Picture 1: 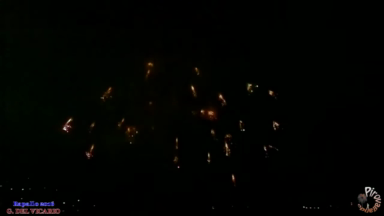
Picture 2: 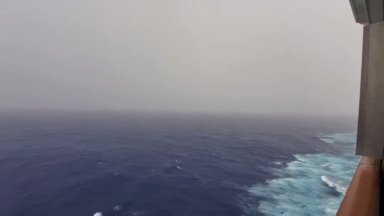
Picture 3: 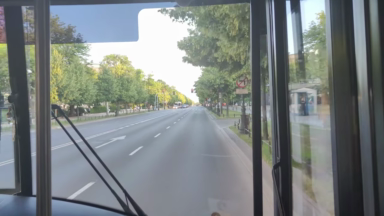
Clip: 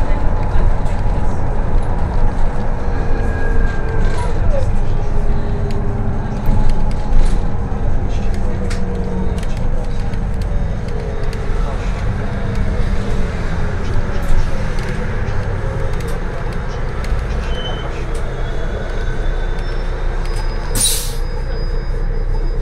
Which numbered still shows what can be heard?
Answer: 3